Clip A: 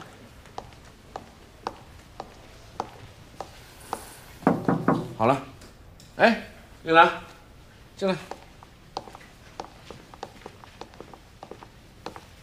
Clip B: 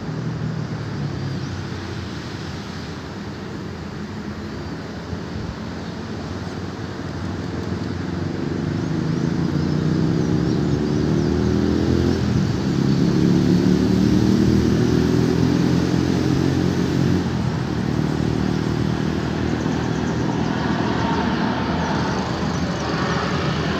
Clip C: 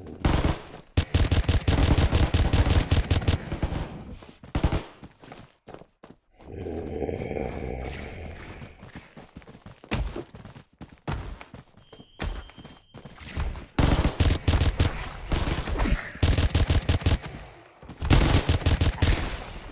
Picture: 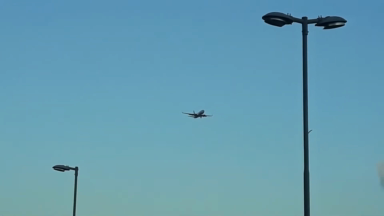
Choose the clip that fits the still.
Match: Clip B